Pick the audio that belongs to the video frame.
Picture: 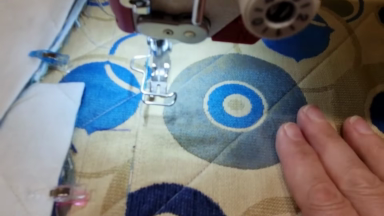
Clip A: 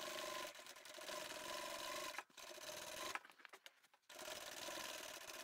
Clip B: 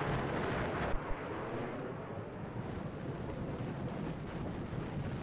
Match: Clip A